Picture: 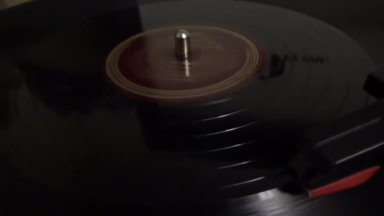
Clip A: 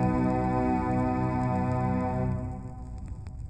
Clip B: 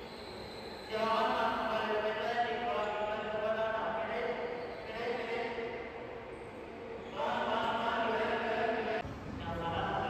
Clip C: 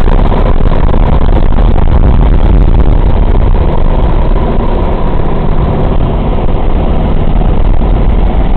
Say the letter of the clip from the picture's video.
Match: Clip A